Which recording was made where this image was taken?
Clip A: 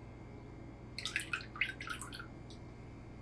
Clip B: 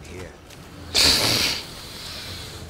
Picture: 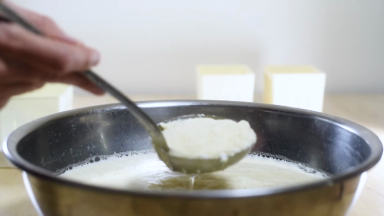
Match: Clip A